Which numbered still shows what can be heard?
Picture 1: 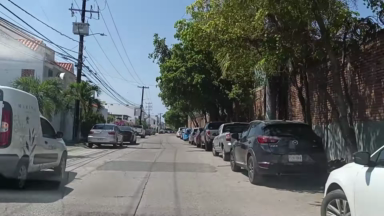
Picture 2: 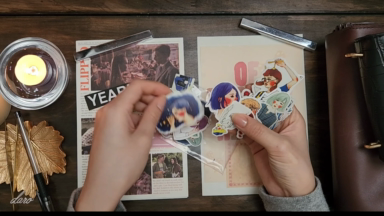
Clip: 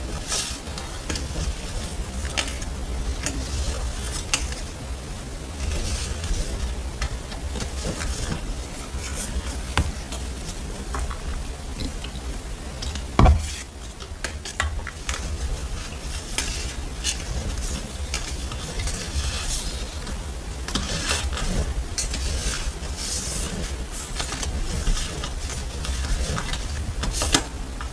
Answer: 2